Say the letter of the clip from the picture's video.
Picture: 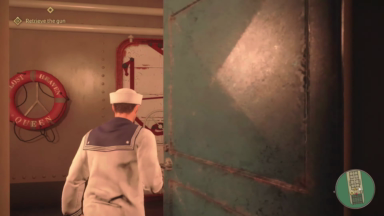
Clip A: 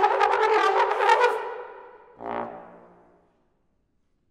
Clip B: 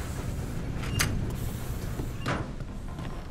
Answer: B